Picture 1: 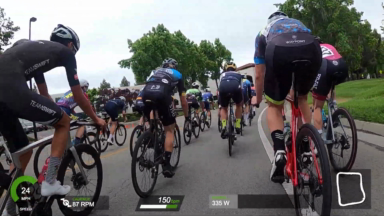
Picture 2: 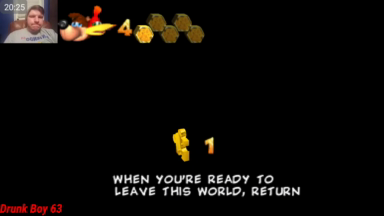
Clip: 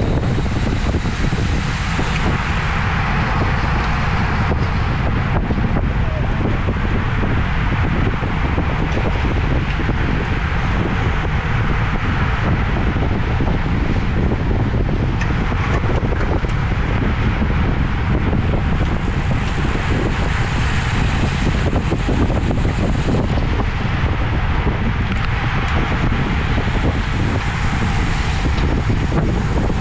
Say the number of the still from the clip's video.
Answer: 1